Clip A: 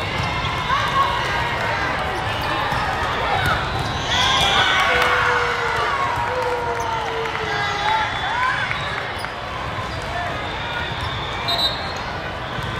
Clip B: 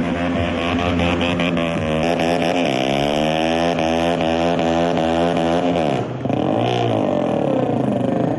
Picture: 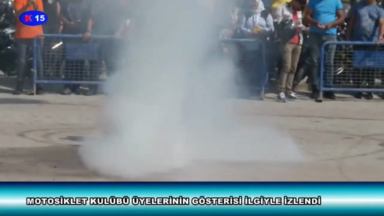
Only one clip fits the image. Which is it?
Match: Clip B